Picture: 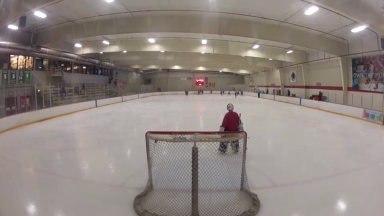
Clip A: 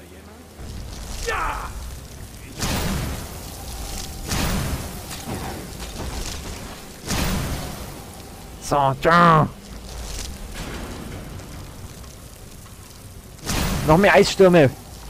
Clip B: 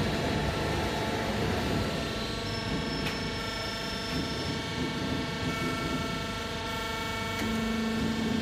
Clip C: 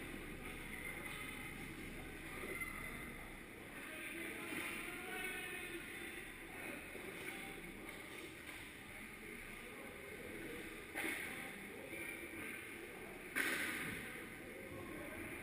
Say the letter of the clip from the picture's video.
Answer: C